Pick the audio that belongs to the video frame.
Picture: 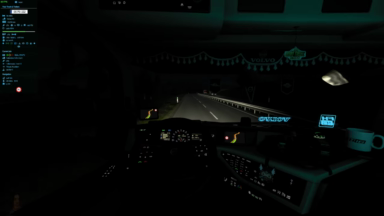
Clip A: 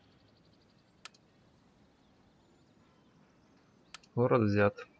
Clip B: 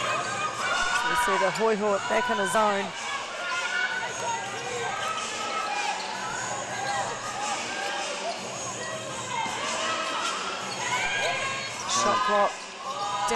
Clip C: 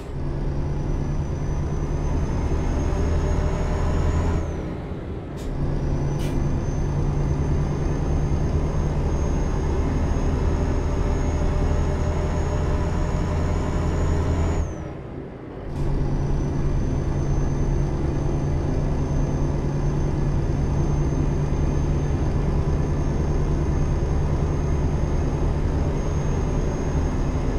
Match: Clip C